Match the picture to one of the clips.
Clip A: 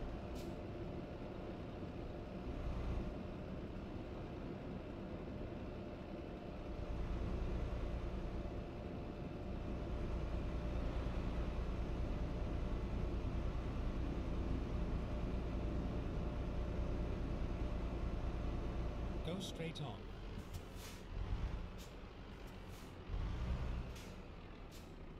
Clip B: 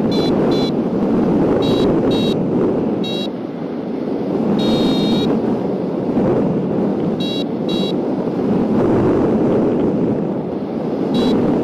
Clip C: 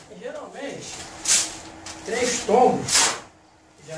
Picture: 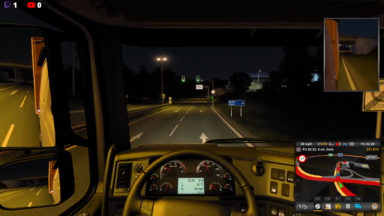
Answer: A